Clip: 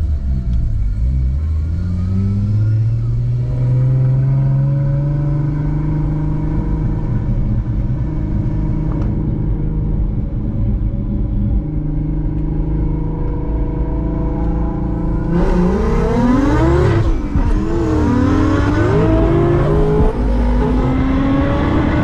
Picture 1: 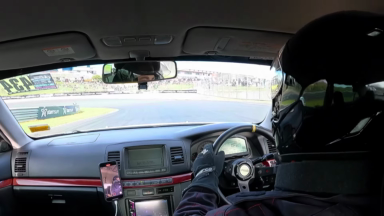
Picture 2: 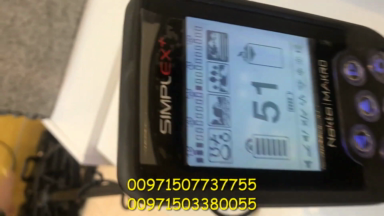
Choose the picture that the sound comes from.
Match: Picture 1